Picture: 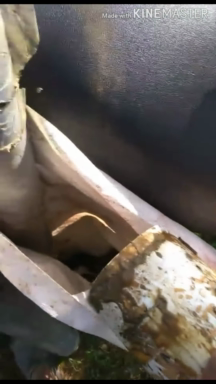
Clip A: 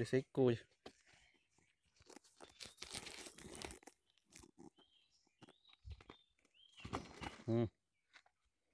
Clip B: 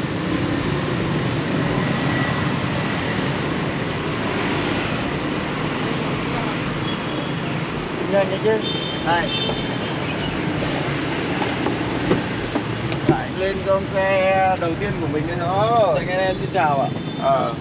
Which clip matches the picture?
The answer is A